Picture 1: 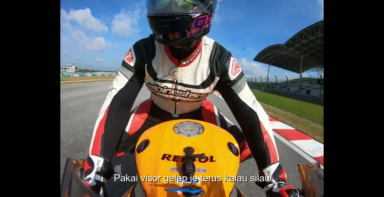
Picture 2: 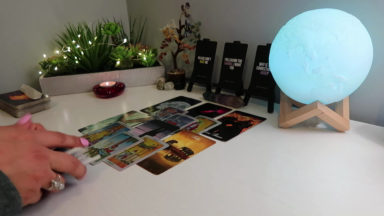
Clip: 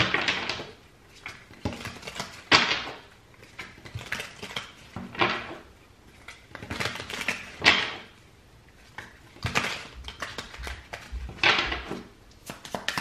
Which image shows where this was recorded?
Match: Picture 2